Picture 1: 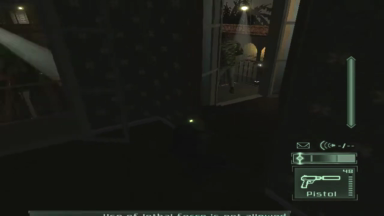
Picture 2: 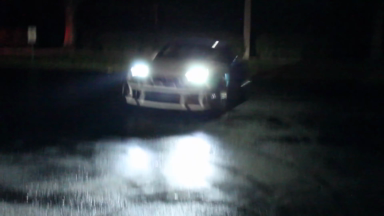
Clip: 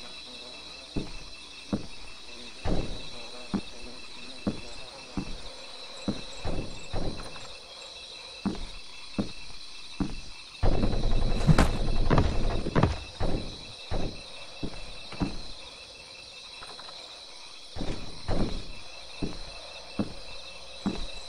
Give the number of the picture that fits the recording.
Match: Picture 1